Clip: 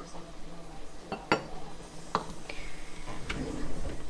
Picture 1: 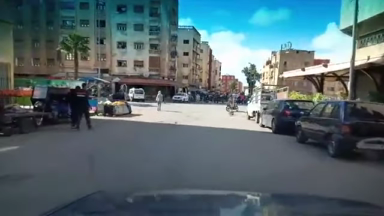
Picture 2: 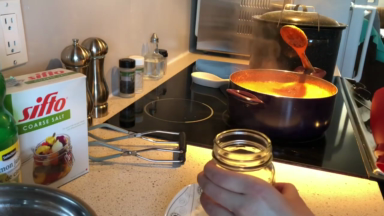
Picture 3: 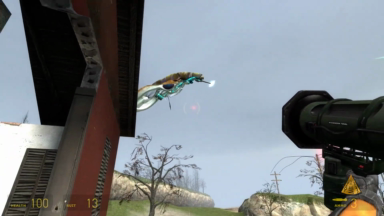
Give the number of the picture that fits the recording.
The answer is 2